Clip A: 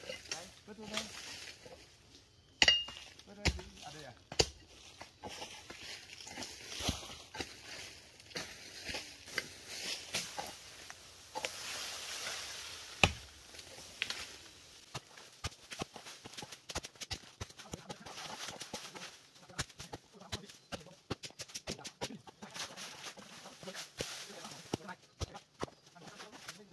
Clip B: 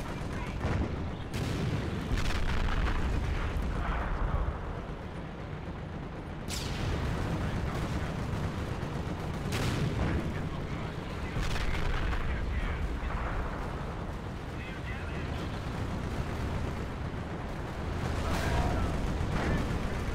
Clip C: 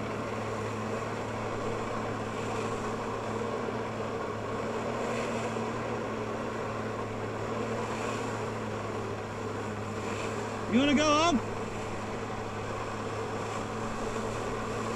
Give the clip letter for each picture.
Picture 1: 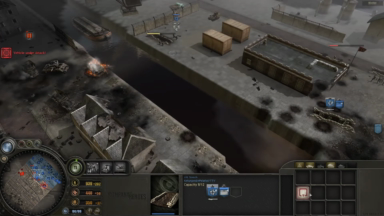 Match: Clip B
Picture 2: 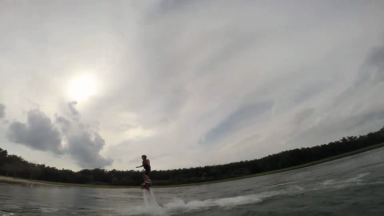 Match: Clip C